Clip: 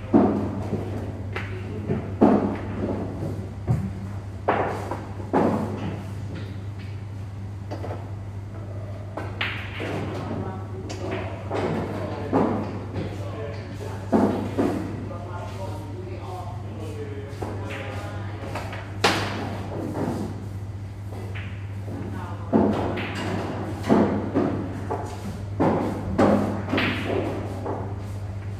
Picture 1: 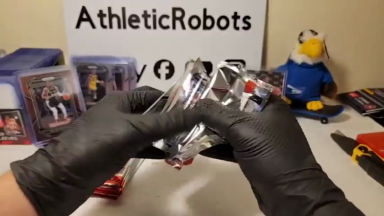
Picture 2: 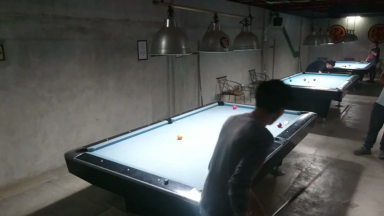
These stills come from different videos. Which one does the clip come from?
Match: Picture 2